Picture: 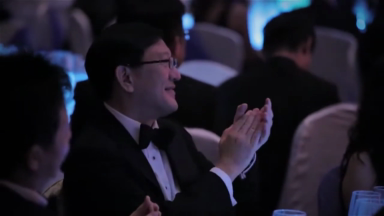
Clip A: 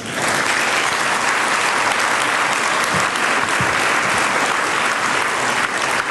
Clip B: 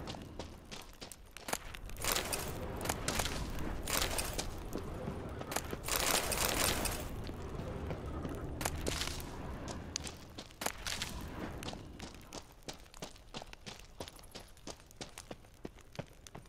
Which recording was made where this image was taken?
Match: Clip A